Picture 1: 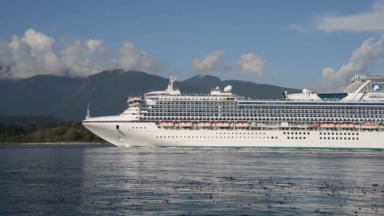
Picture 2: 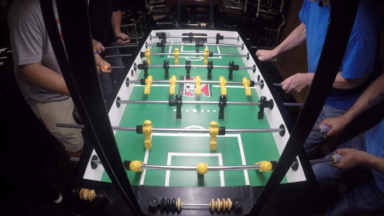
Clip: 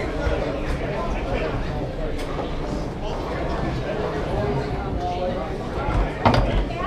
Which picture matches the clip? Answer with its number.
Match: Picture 2